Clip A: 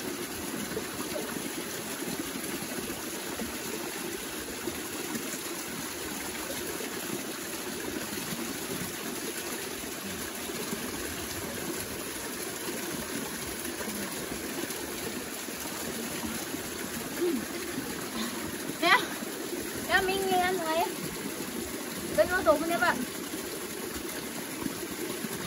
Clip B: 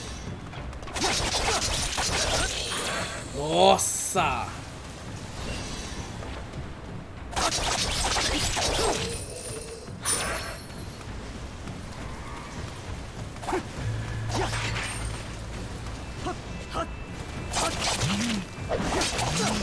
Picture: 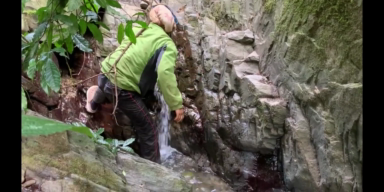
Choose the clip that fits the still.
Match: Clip A